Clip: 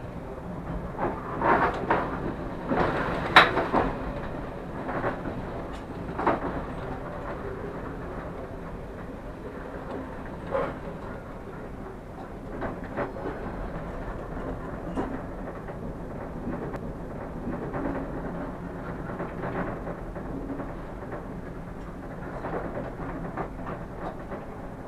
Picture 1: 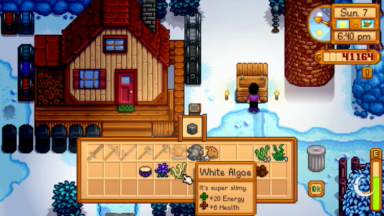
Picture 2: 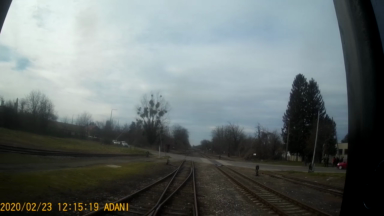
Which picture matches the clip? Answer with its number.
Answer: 2